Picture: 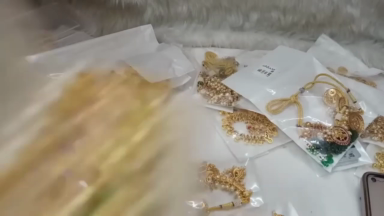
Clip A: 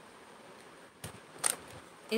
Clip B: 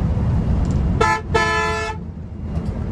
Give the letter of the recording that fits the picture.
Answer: A